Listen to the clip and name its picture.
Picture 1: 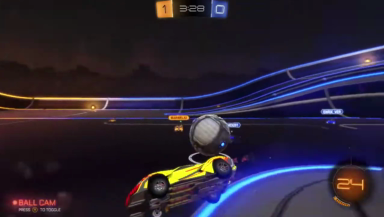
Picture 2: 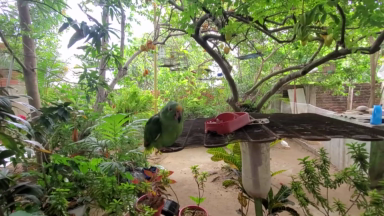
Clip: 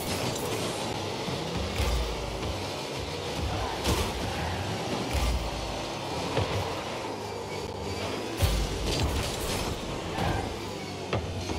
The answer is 1